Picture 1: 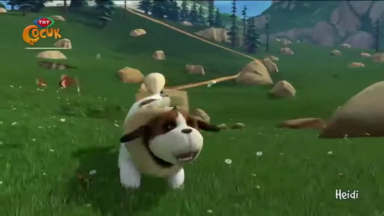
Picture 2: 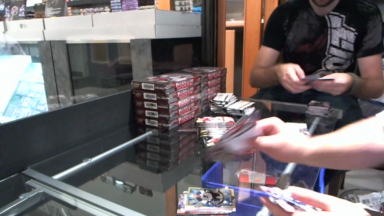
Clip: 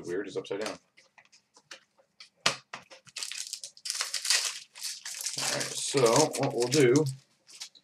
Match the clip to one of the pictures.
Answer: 2